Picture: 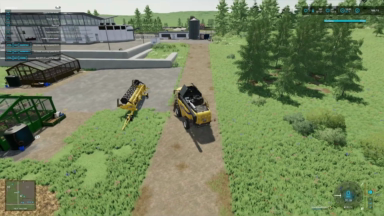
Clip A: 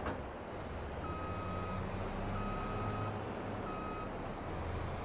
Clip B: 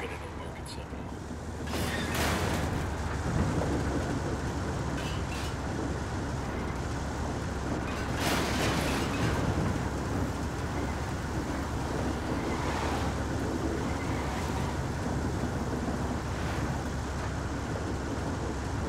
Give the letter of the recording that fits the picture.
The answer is A